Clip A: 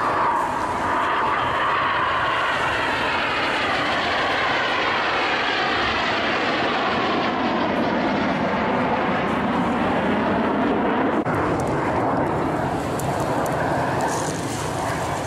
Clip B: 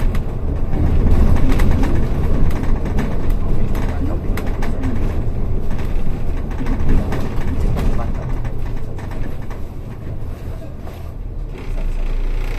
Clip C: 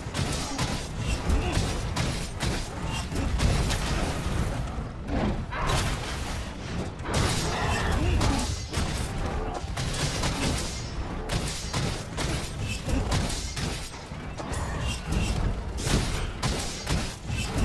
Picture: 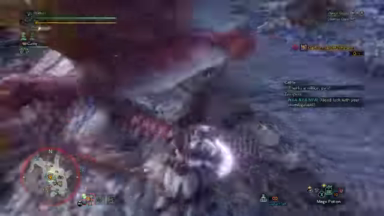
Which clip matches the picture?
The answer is C